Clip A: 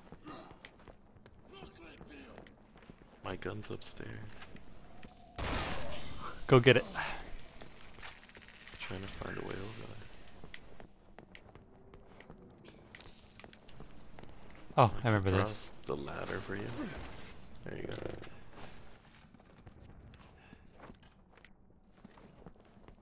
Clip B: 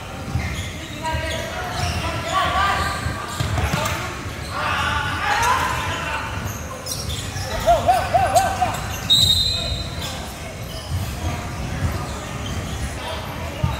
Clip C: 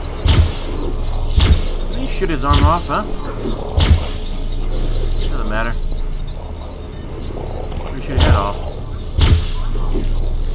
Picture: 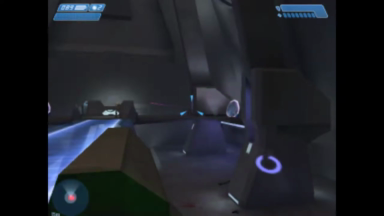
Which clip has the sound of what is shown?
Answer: C